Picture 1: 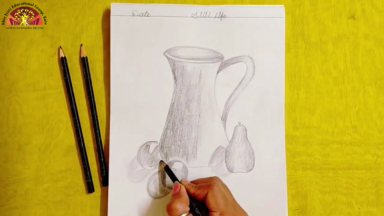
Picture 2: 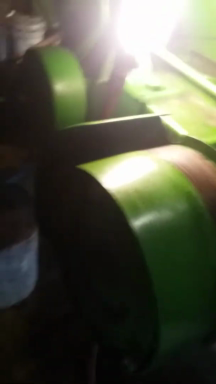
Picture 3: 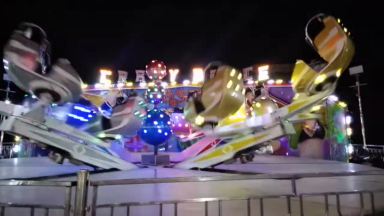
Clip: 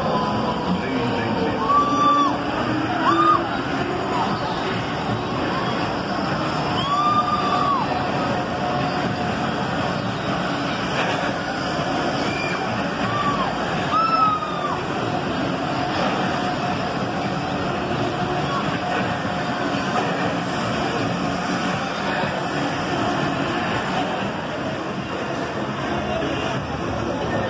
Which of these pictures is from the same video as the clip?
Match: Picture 3